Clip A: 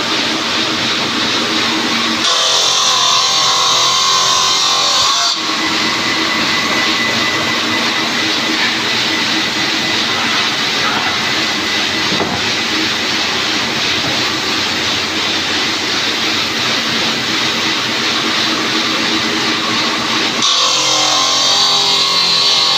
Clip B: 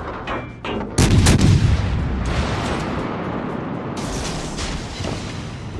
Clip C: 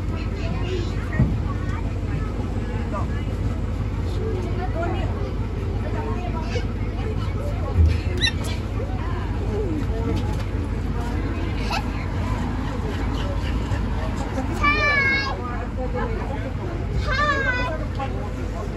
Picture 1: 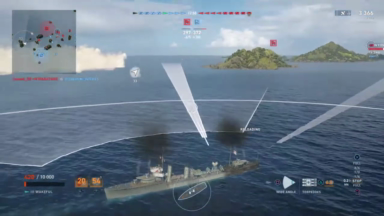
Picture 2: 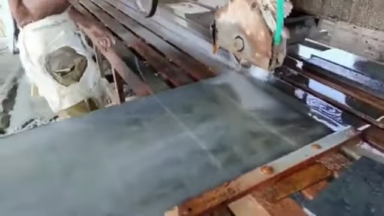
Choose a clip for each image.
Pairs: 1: B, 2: A